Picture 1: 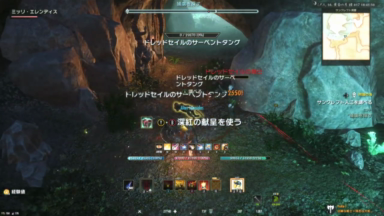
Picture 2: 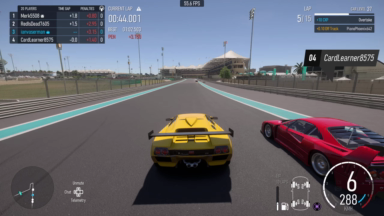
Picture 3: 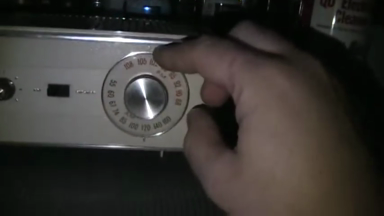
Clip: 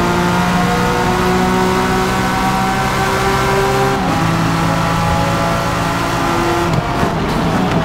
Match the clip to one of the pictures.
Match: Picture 2